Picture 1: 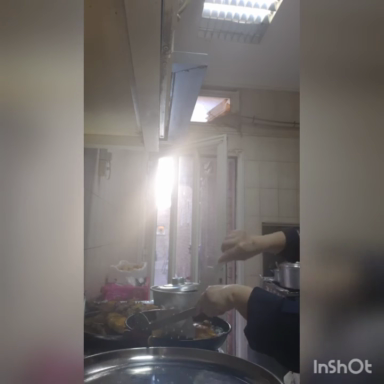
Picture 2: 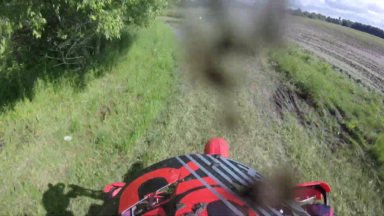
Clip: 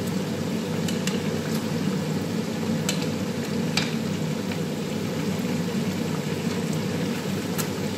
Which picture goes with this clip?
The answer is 1